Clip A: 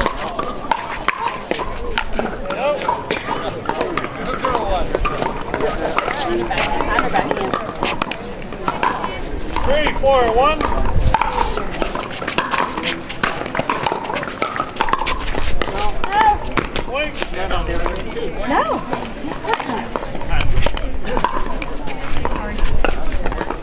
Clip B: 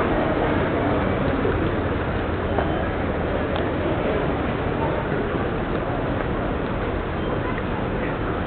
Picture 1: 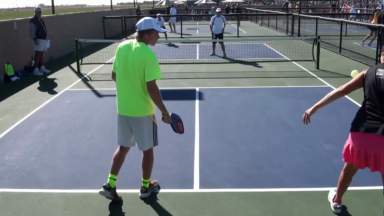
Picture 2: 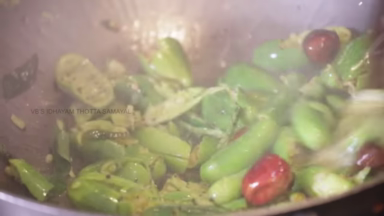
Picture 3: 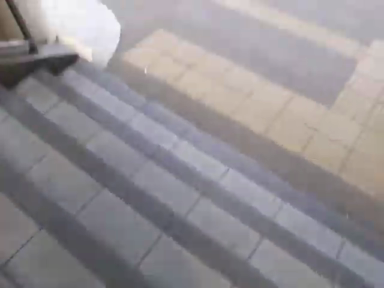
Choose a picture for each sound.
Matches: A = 1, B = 3